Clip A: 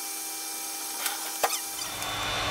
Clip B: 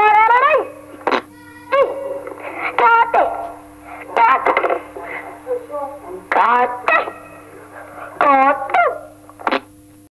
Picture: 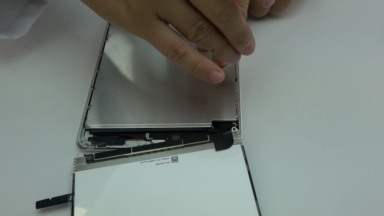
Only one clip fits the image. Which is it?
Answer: A